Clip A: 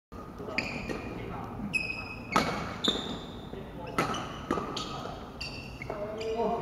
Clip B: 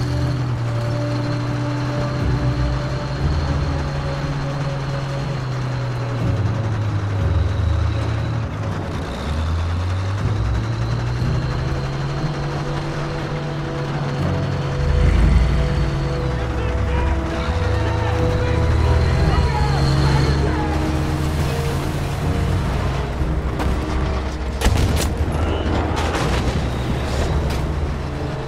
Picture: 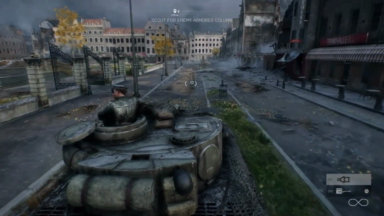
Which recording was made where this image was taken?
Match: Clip B